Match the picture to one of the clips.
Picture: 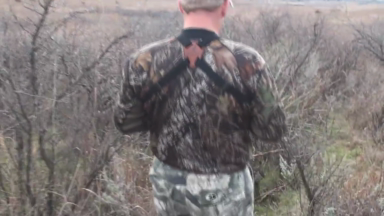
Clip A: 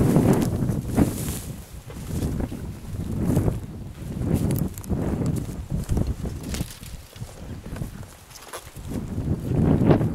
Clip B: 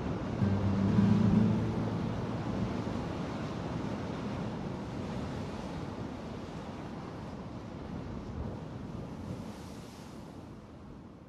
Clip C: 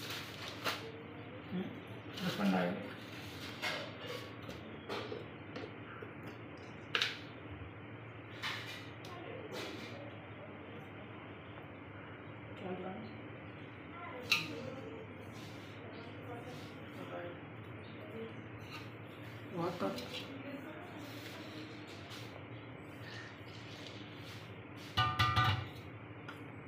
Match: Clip A